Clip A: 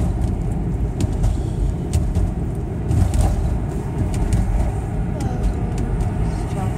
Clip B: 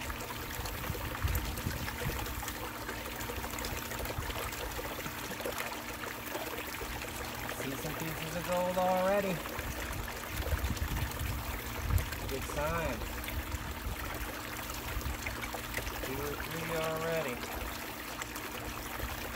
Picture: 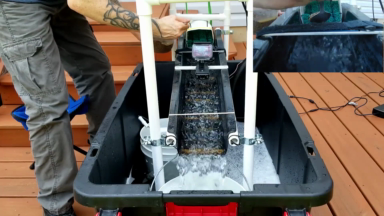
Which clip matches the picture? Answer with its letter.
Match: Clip B